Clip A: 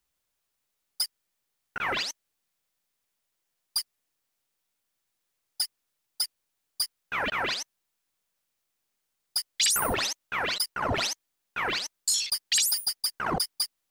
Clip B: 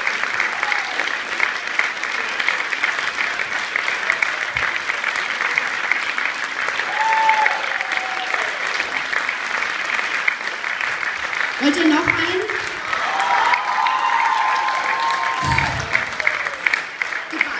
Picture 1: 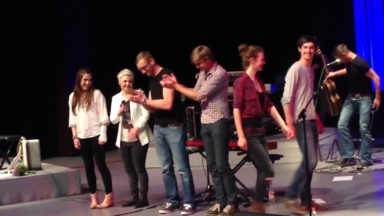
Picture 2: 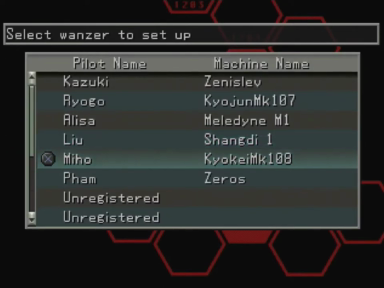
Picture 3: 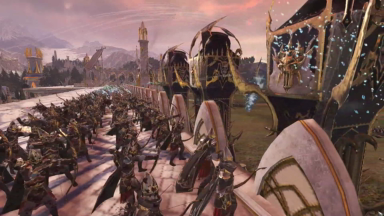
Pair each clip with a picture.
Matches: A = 2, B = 1